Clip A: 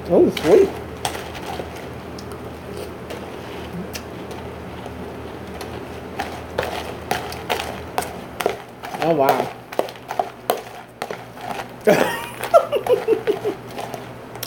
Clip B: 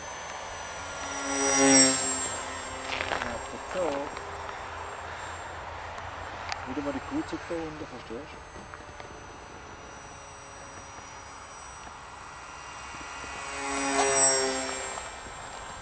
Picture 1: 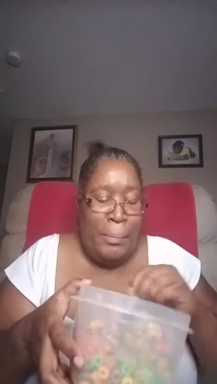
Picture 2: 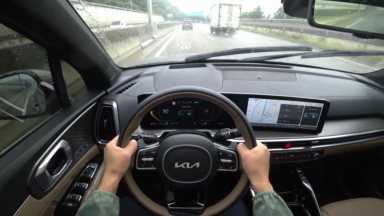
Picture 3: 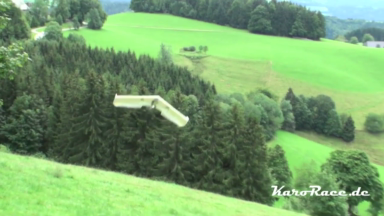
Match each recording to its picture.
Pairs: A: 1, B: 3